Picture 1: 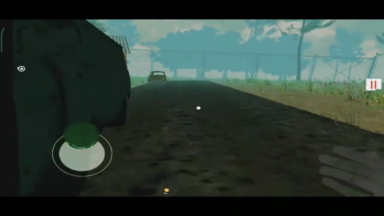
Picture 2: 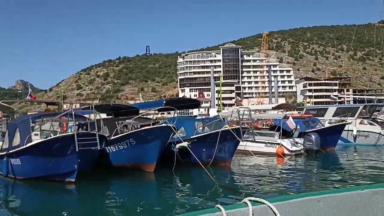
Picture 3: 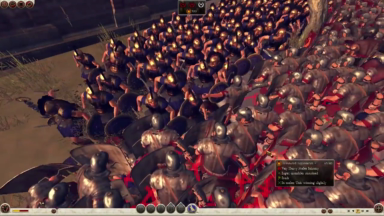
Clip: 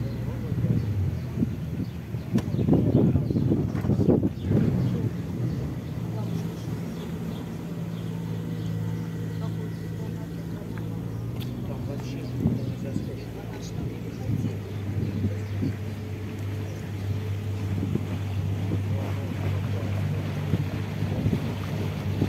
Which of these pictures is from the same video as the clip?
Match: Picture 2